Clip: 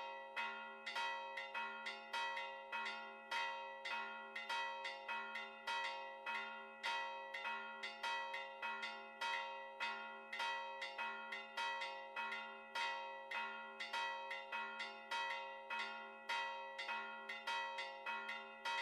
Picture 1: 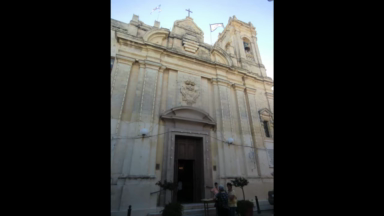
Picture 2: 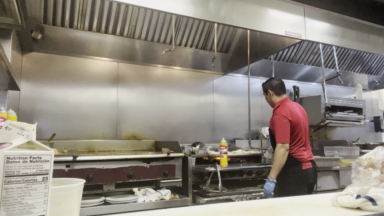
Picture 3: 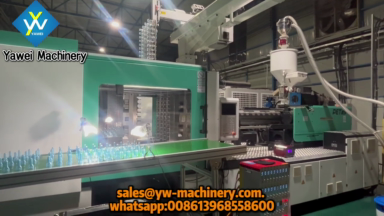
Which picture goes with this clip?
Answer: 1